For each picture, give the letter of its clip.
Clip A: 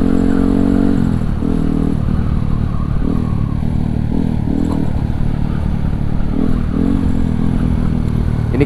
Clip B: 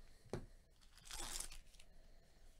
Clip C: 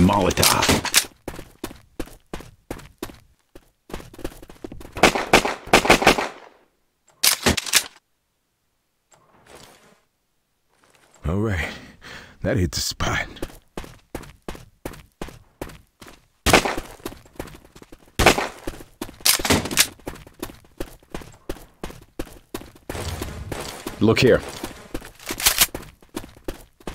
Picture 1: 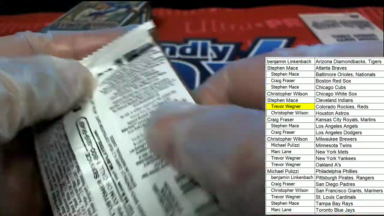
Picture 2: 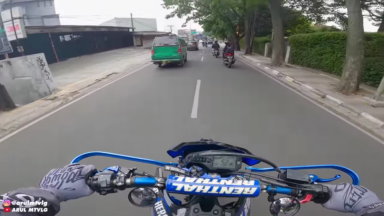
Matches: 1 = B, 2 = A